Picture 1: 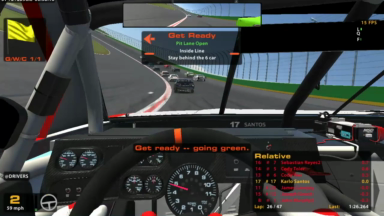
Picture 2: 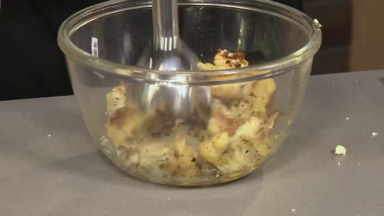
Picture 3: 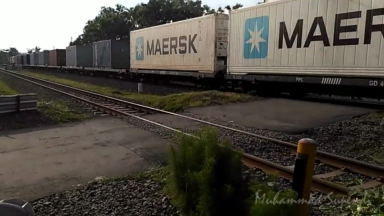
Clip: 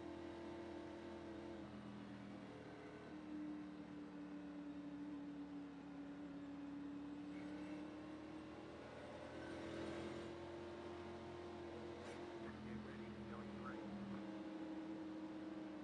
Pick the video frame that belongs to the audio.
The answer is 1